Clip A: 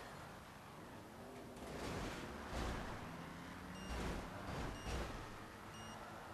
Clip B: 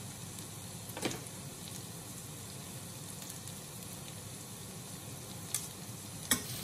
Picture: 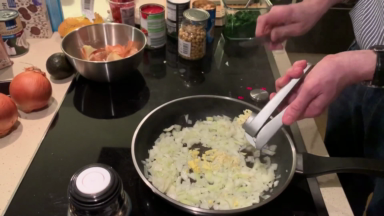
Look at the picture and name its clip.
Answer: B